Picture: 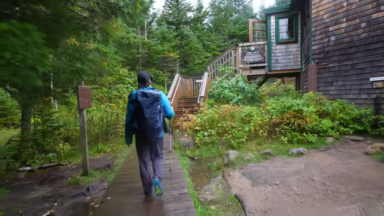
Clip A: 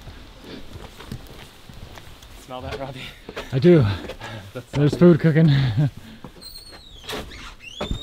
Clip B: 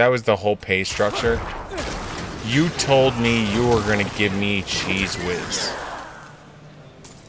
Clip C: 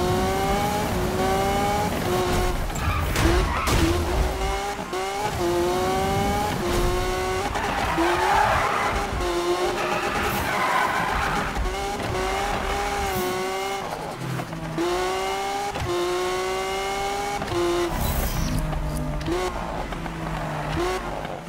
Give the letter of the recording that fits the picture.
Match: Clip A